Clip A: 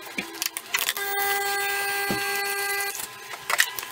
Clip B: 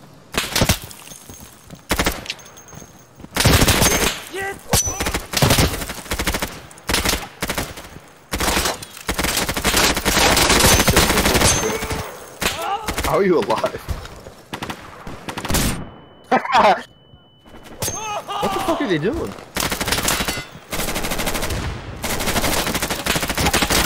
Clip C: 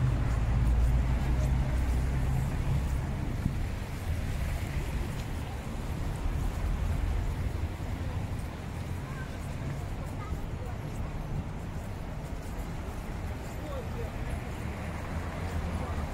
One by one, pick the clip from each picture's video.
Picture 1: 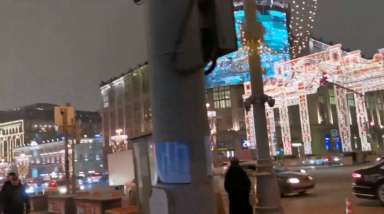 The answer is C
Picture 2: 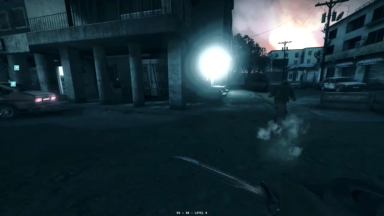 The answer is B